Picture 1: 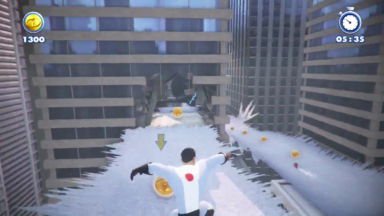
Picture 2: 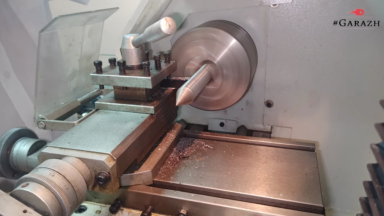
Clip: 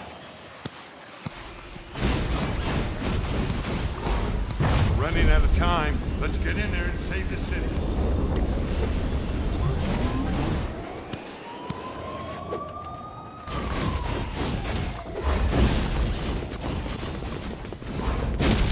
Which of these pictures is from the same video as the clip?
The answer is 1